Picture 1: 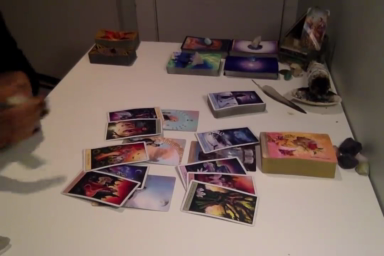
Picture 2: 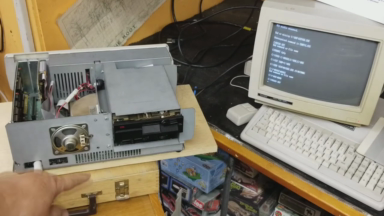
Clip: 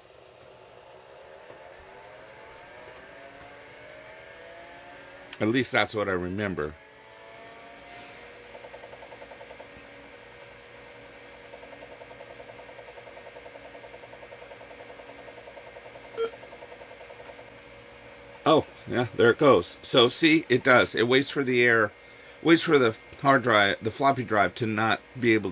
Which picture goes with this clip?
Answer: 2